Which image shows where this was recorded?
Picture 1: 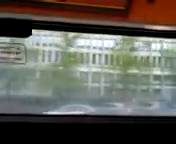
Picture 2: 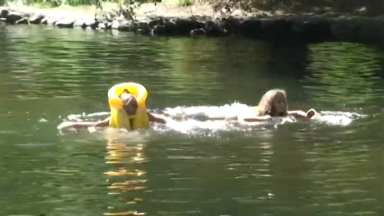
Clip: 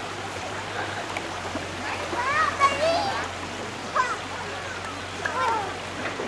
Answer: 2